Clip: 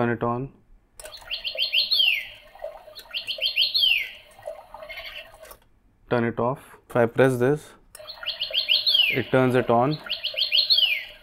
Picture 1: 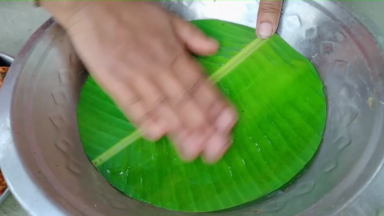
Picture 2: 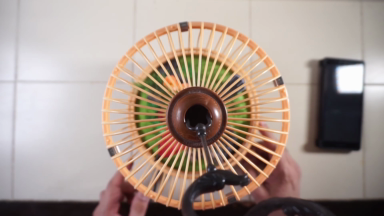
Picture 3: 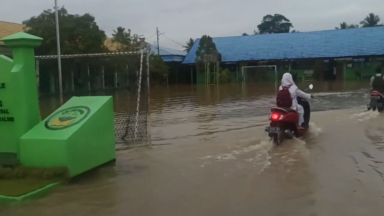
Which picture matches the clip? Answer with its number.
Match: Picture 2